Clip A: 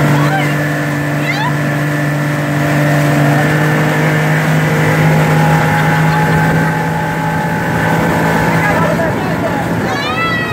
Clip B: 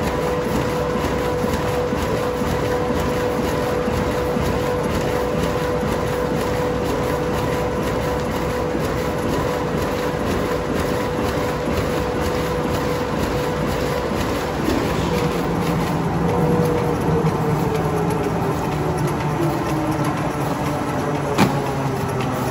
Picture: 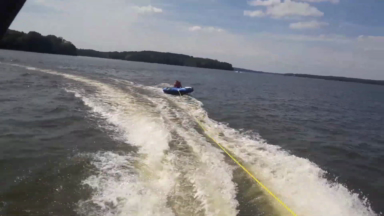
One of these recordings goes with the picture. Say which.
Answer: A